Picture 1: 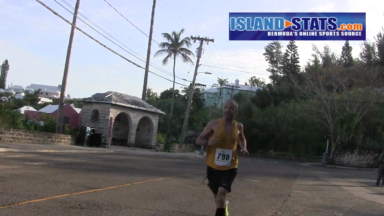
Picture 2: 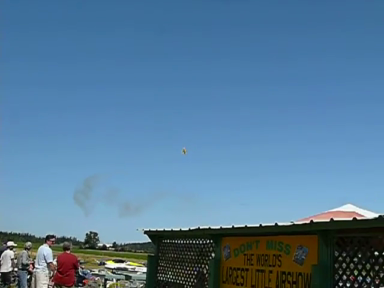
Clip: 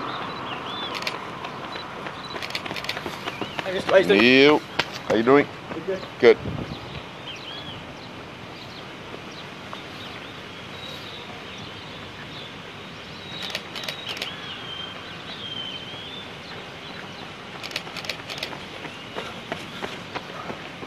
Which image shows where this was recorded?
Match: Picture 1